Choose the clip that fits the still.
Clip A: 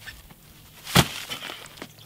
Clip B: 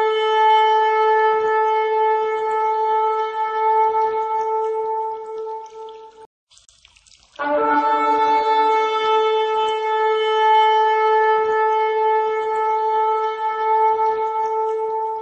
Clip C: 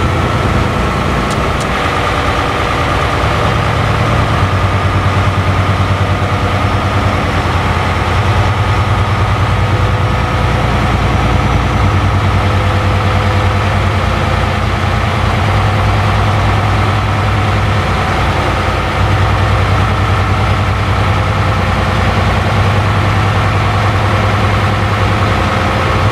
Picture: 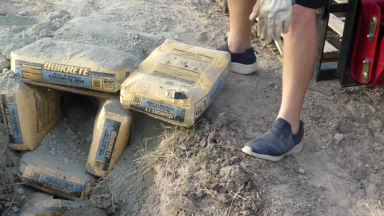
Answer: A